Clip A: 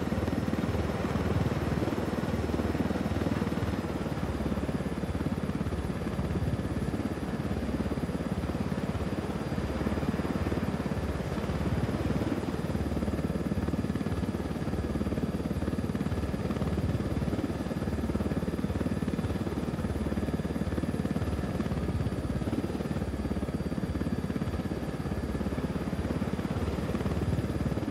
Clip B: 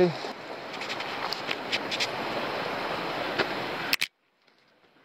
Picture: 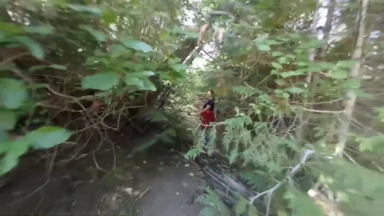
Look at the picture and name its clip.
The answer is B